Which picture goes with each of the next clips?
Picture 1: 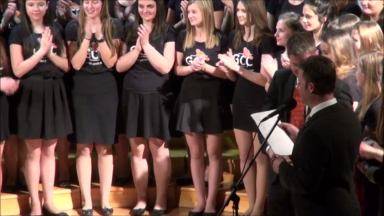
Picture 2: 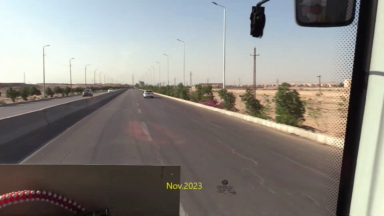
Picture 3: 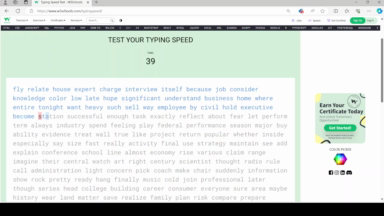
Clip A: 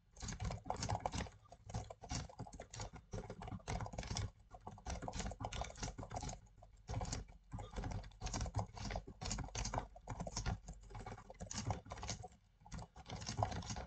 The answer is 3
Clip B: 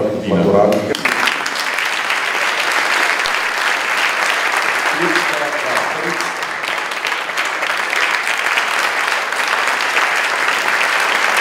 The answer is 1